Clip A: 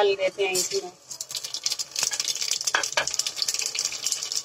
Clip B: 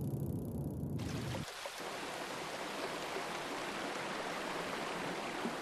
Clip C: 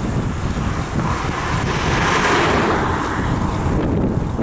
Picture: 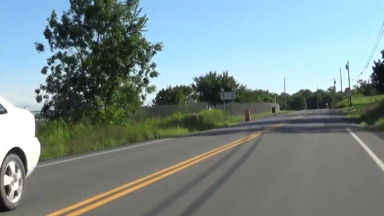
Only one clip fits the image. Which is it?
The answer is C